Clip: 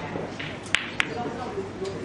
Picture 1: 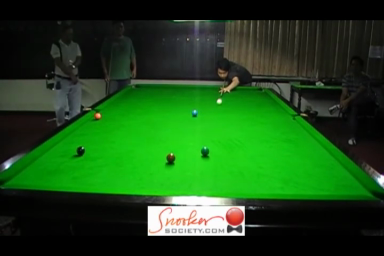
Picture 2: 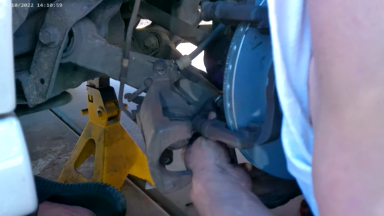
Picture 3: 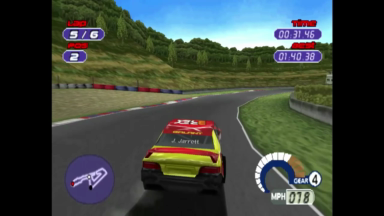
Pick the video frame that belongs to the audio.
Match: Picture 1